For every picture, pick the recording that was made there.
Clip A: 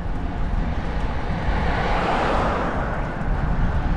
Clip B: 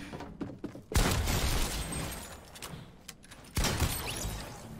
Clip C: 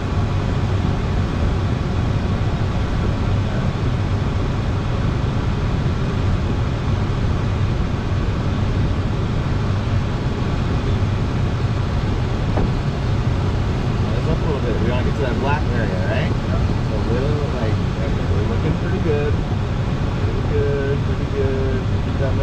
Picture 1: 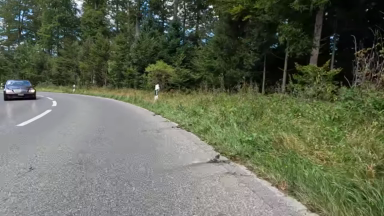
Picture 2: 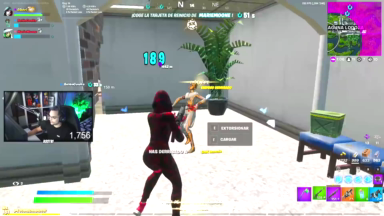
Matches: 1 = A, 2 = B